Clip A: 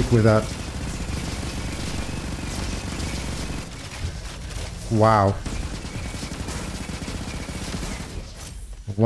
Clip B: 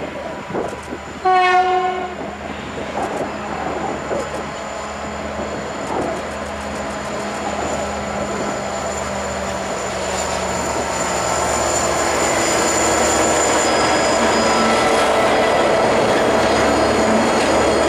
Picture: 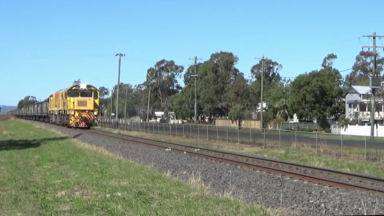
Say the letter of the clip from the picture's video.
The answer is B